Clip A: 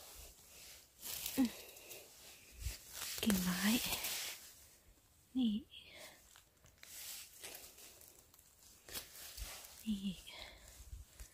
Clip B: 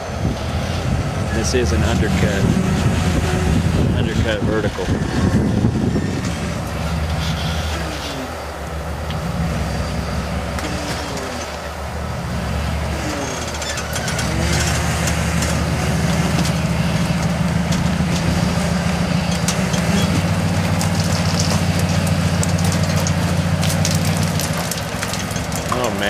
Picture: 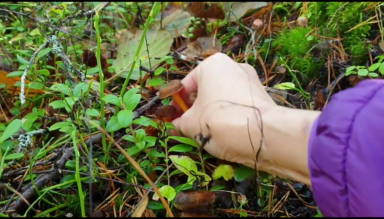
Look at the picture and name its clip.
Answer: A